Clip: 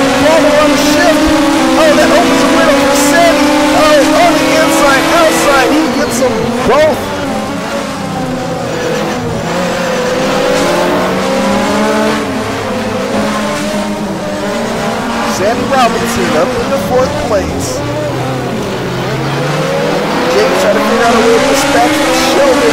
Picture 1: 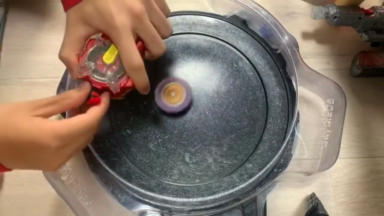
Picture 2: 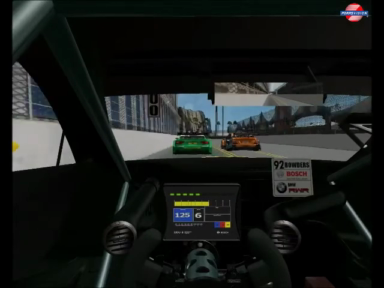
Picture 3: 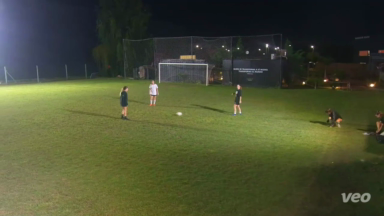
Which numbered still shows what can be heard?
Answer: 2